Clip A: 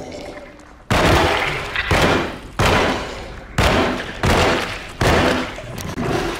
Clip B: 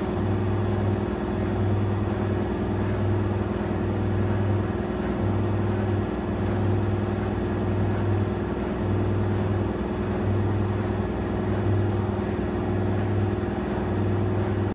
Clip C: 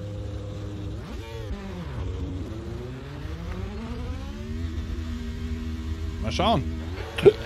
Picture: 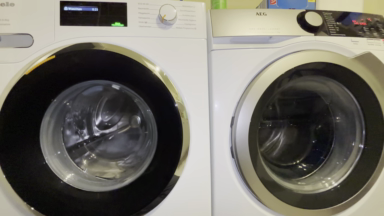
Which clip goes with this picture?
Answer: B